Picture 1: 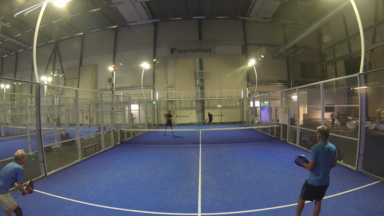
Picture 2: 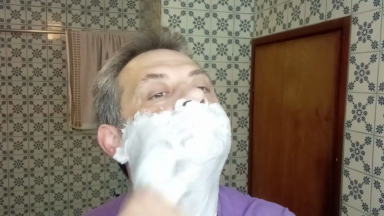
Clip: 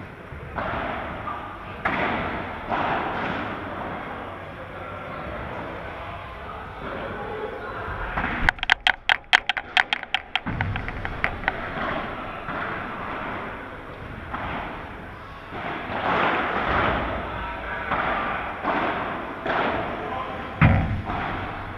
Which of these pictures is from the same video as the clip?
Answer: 1